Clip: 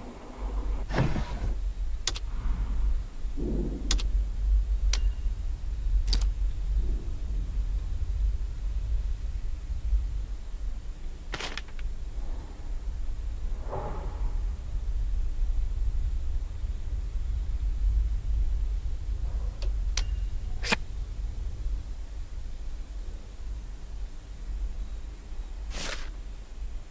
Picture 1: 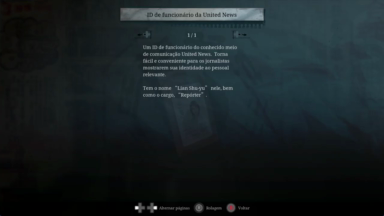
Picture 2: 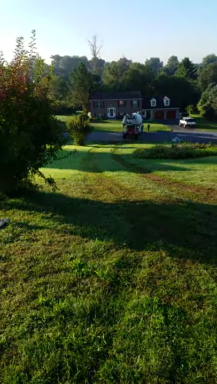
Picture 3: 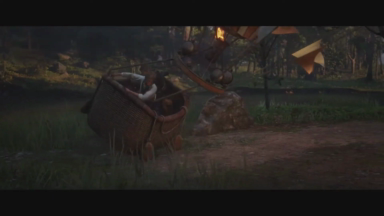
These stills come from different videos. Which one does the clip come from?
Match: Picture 1